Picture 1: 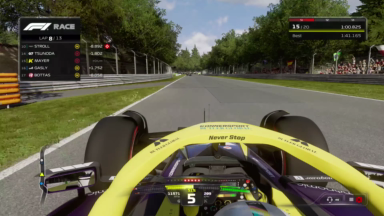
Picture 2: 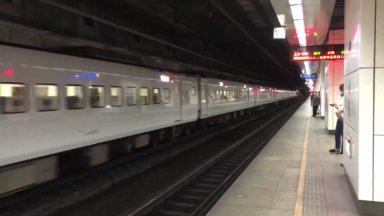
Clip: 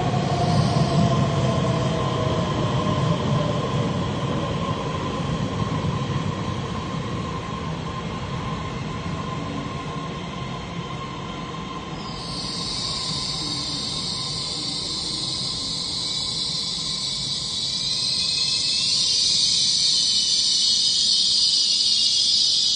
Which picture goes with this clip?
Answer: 2